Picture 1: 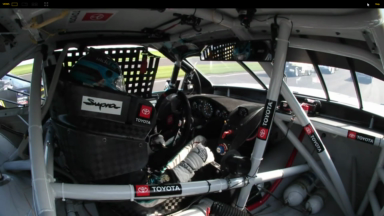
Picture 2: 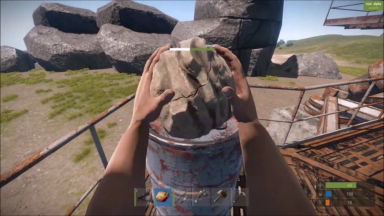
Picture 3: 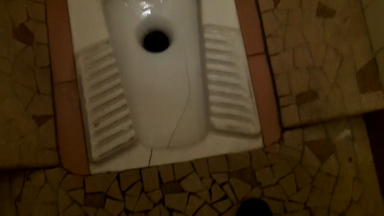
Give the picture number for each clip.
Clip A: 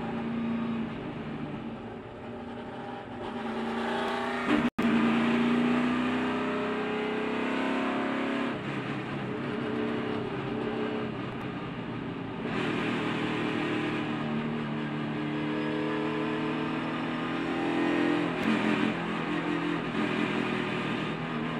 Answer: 1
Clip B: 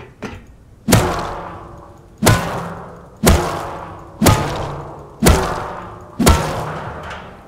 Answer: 2